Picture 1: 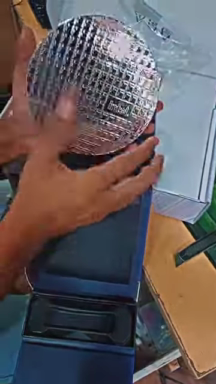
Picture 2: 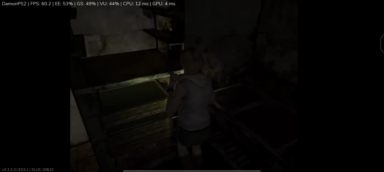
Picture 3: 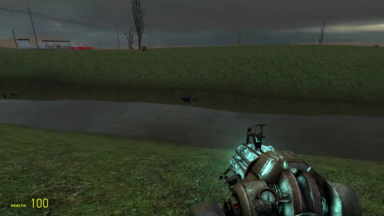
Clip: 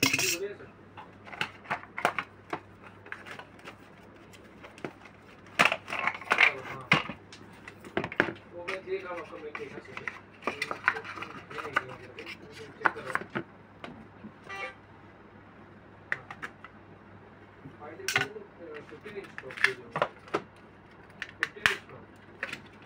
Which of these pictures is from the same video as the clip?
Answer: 1